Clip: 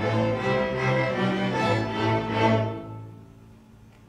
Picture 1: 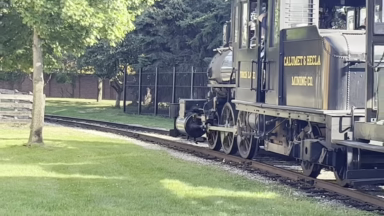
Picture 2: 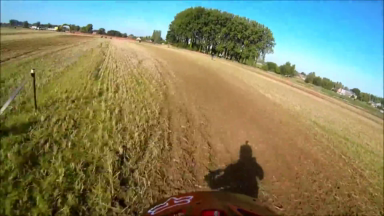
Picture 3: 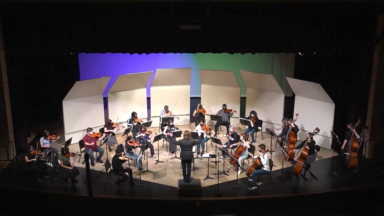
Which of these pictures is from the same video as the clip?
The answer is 3